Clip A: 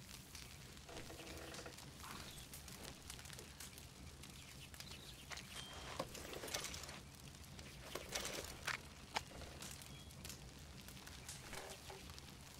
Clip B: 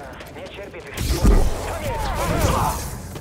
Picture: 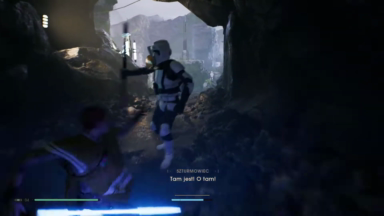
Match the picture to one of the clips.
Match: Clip B